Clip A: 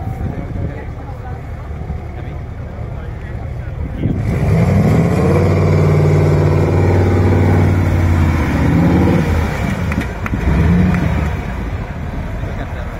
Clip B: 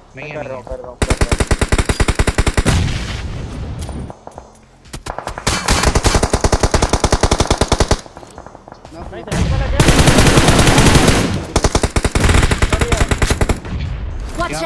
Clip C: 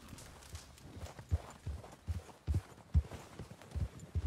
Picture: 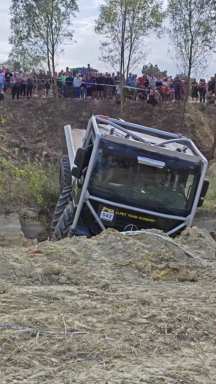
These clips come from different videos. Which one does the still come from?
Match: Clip A